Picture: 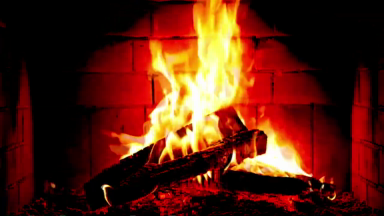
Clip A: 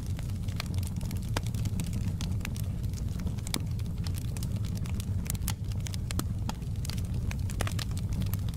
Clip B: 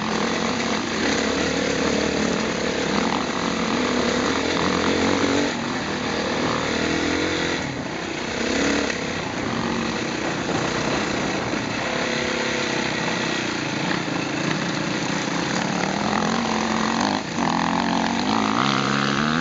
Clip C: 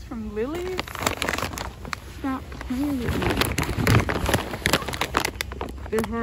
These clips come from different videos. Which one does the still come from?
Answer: A